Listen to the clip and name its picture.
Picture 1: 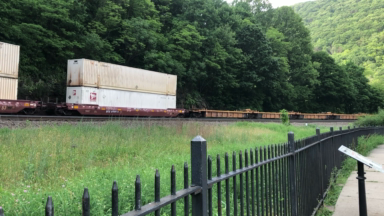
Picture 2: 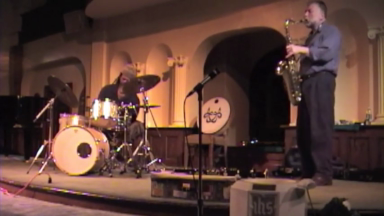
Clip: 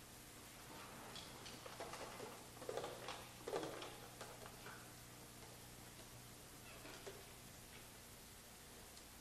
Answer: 2